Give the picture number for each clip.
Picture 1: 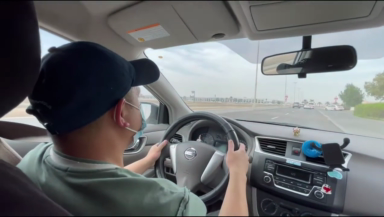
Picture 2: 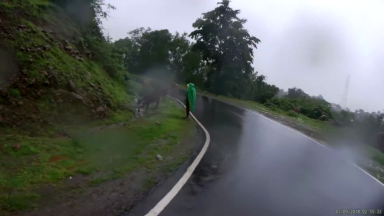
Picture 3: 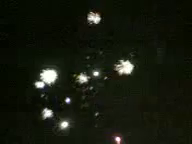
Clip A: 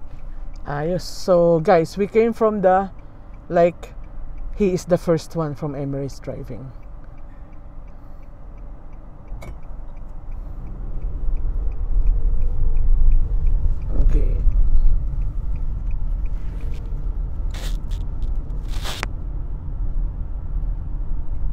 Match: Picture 1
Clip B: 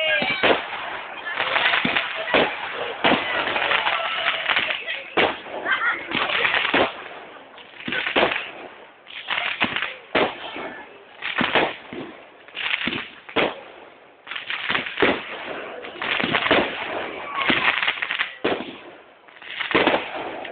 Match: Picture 3